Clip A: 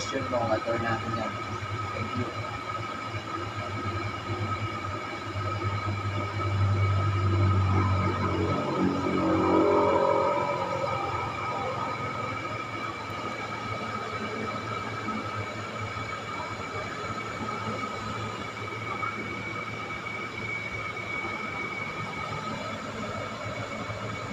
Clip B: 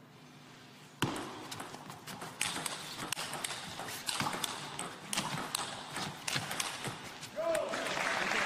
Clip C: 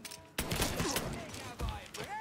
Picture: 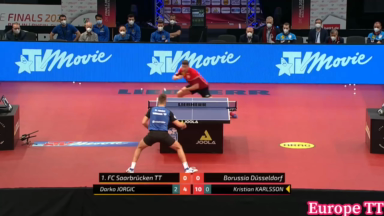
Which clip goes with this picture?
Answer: B